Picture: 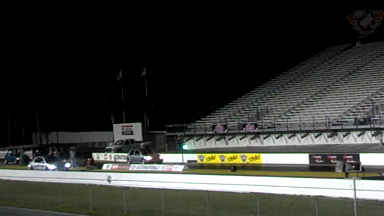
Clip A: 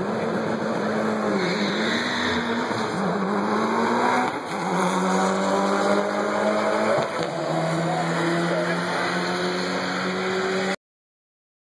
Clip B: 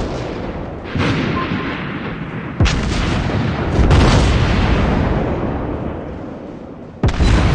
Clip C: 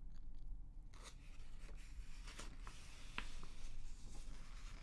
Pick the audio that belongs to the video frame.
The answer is A